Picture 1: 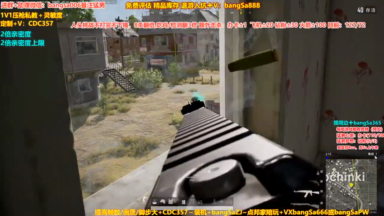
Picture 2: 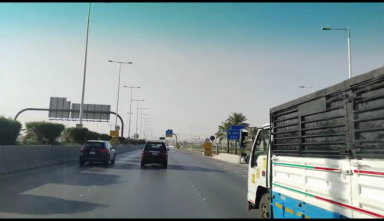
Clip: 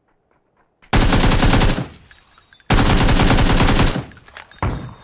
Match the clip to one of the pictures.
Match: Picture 1